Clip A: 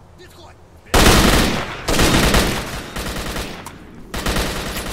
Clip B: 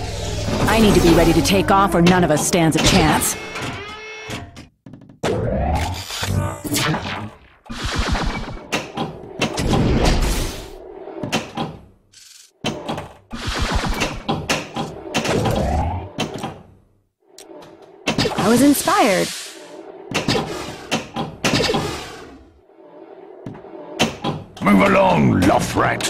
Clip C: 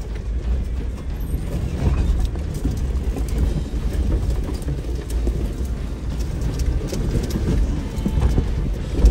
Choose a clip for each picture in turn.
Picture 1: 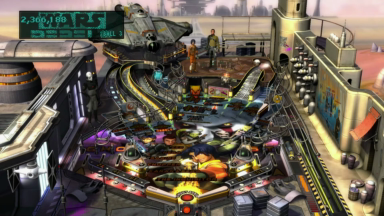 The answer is B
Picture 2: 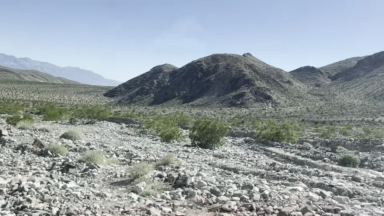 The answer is C